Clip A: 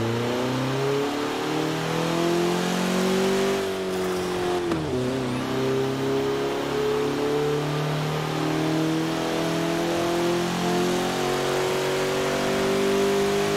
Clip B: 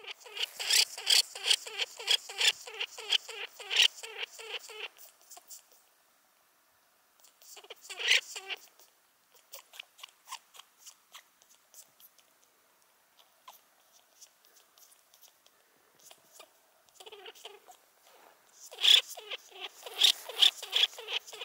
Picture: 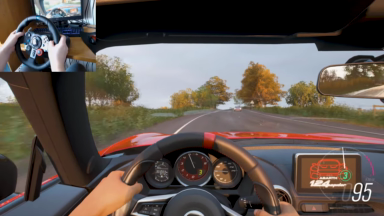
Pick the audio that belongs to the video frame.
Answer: A